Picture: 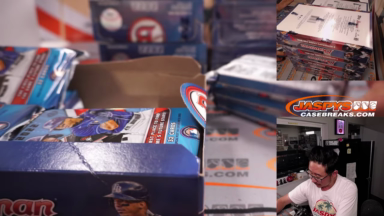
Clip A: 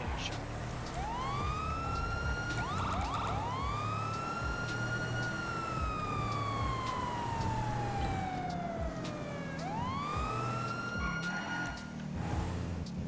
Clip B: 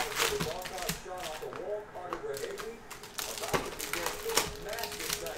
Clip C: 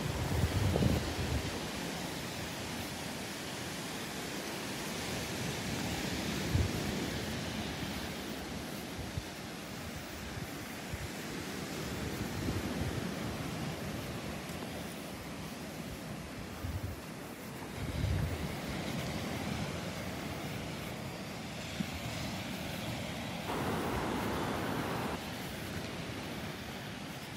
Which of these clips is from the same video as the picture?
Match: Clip B